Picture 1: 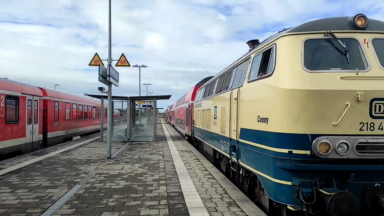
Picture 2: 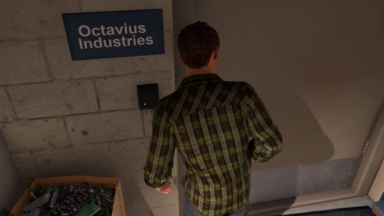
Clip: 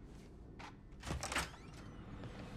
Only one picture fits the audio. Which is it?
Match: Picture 2